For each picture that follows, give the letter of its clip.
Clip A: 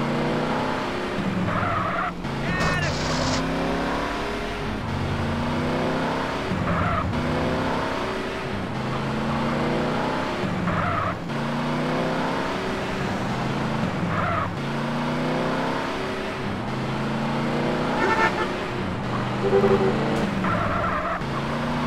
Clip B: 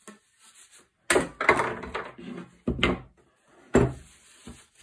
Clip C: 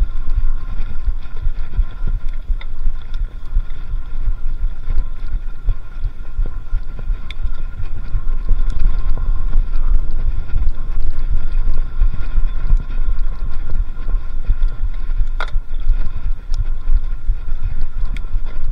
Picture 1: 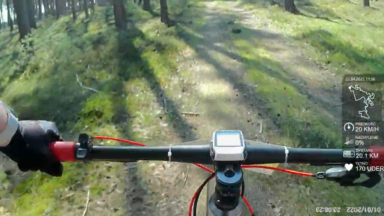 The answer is C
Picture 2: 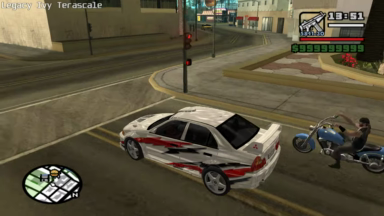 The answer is A